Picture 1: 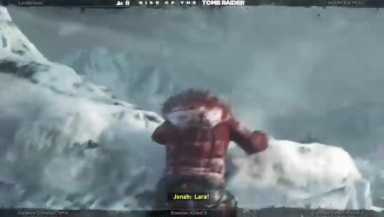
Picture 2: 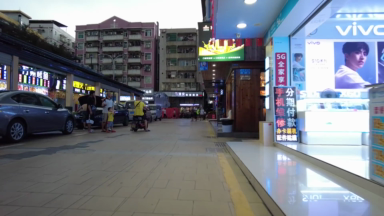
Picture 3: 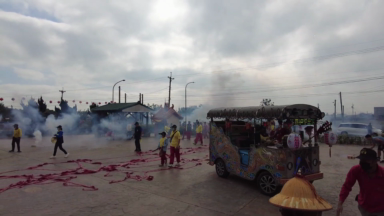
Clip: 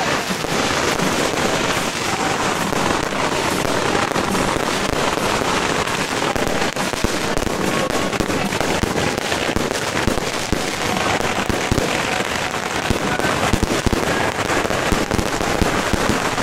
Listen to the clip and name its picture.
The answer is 3